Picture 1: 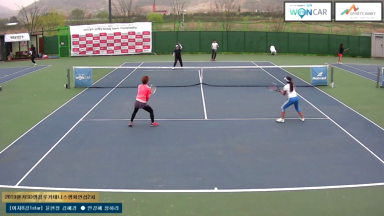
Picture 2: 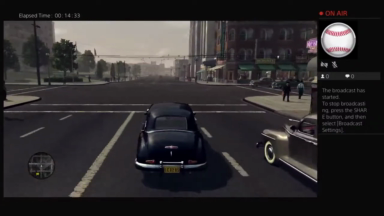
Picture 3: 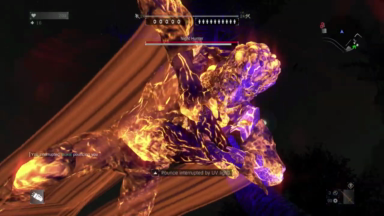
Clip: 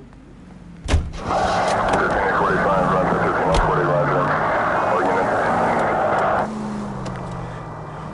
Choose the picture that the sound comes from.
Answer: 2